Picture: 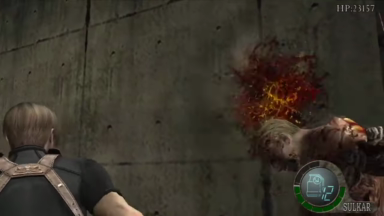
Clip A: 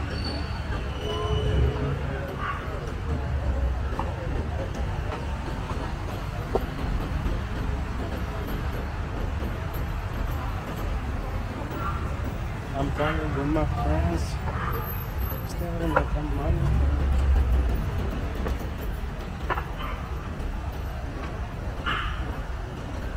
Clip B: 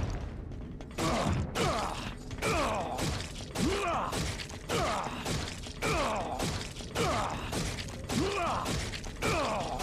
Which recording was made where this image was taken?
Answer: B